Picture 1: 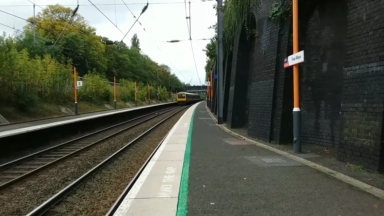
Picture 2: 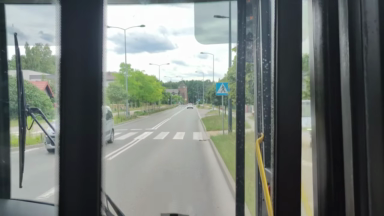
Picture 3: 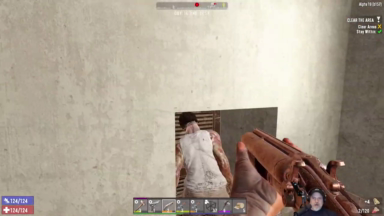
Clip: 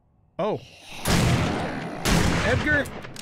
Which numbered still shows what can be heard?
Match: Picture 3